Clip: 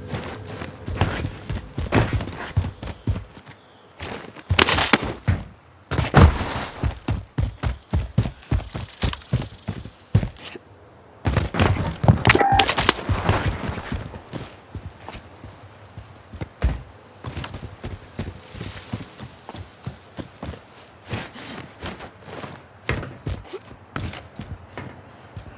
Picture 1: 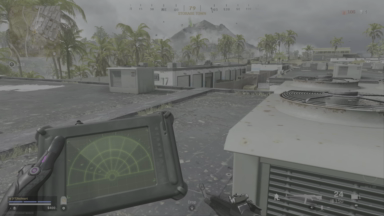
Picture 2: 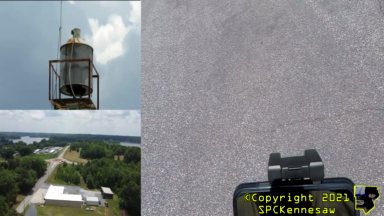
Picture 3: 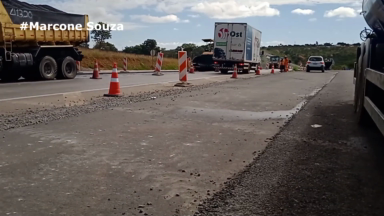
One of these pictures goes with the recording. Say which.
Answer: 1